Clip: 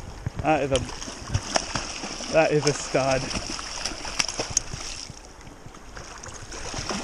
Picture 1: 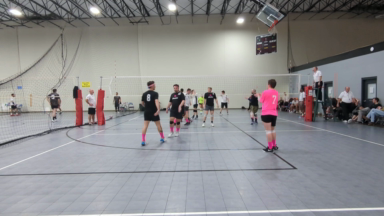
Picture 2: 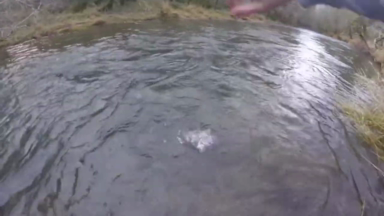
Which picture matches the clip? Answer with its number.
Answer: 2